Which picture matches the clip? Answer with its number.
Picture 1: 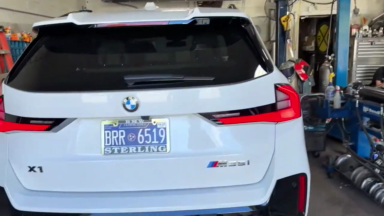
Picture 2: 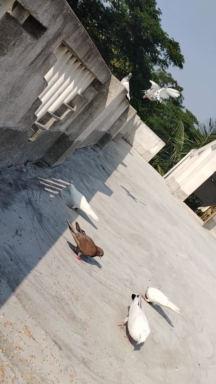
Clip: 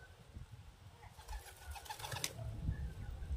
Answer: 2